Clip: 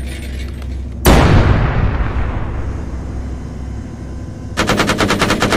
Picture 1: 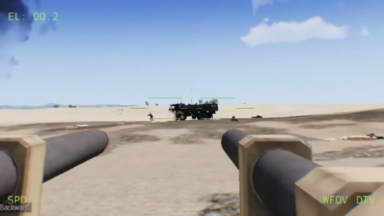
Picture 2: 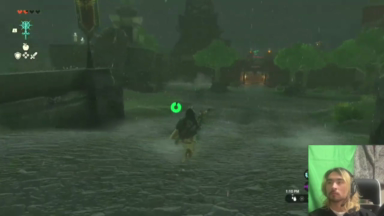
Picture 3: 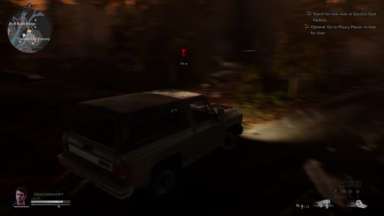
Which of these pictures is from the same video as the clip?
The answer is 1